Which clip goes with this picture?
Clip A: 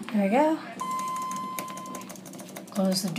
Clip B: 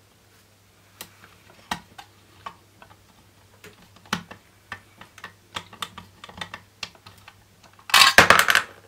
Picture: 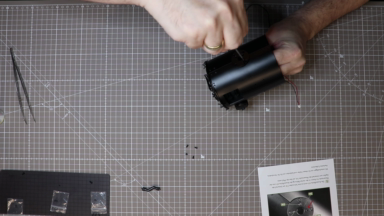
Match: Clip B